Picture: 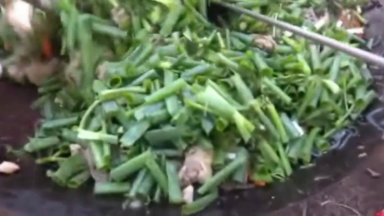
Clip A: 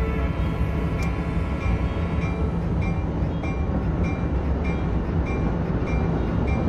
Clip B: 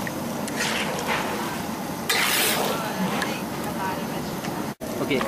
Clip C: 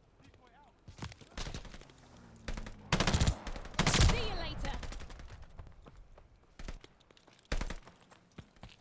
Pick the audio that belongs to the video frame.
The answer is B